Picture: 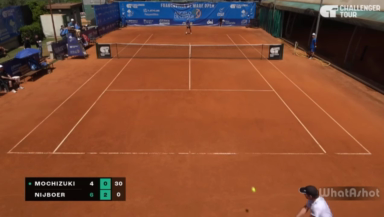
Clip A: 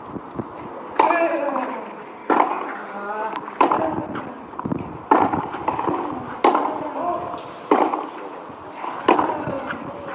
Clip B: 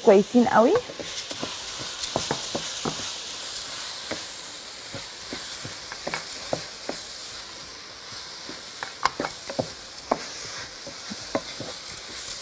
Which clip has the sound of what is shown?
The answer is A